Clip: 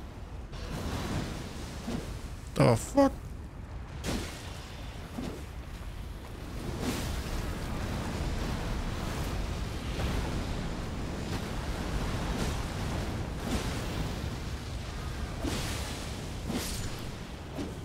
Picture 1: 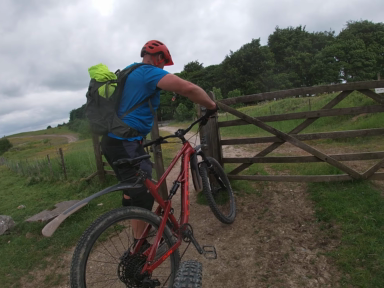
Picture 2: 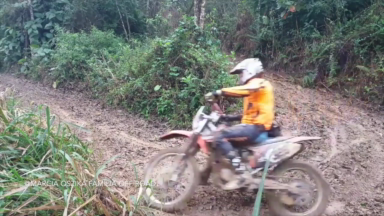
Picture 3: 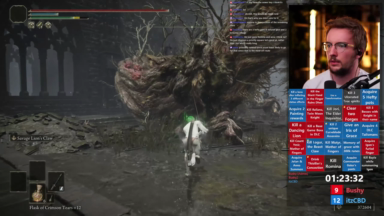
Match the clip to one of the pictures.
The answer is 3